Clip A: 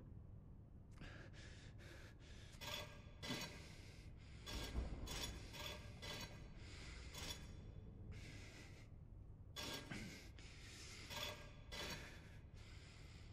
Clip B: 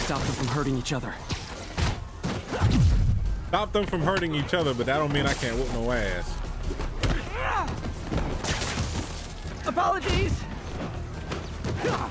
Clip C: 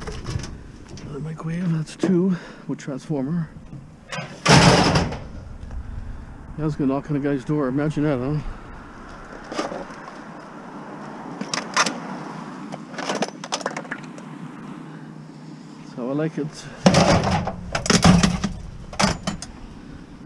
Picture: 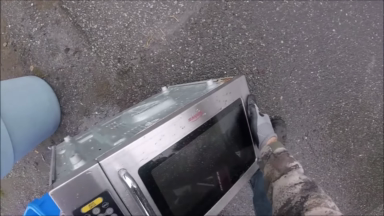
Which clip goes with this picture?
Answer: C